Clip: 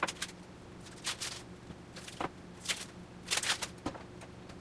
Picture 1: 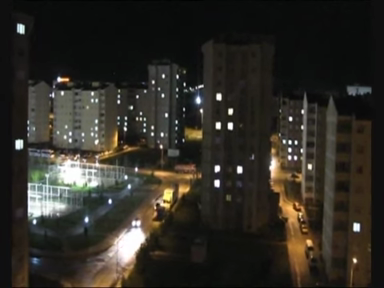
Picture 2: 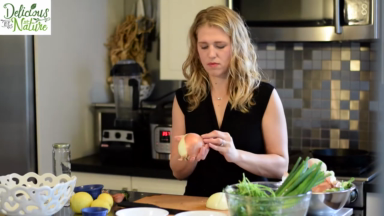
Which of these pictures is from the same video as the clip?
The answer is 2